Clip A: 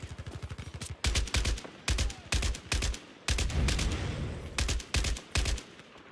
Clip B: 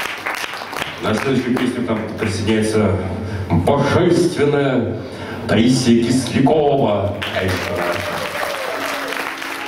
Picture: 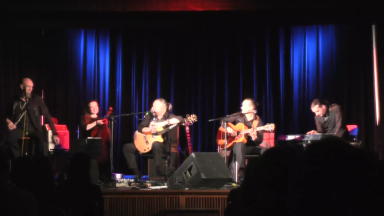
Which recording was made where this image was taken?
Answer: B